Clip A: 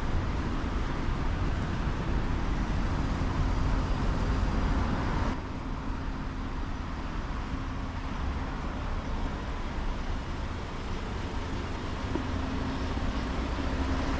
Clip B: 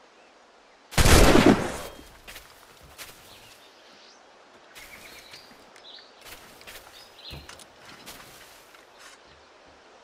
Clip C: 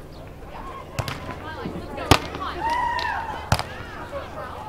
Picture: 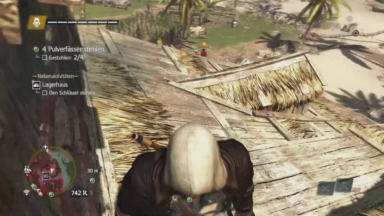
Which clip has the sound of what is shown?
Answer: B